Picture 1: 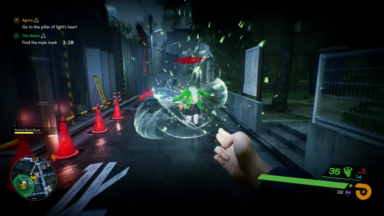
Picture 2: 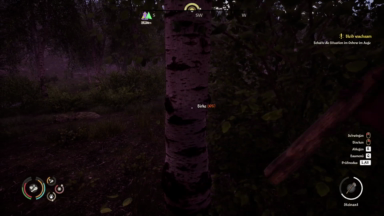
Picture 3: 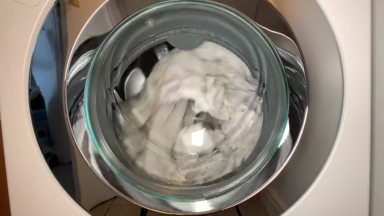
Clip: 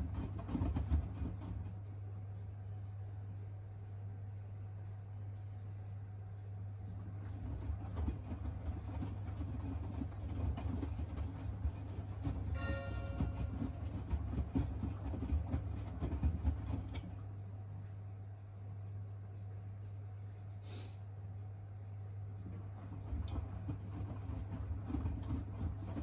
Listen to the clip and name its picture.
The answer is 3